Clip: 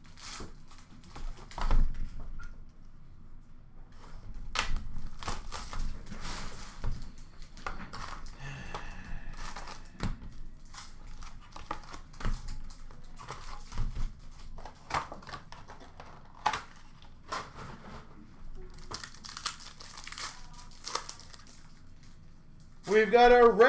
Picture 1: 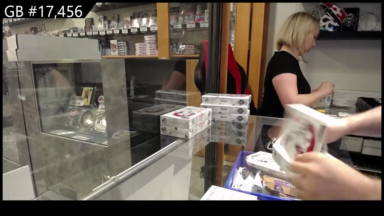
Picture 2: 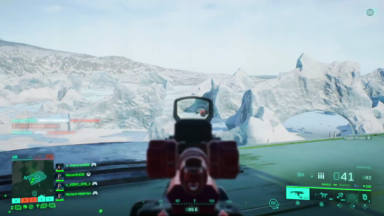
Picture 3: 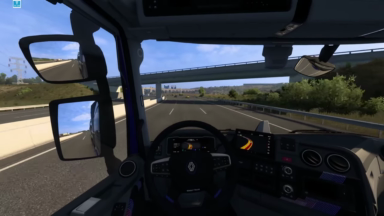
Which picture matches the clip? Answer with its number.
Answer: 1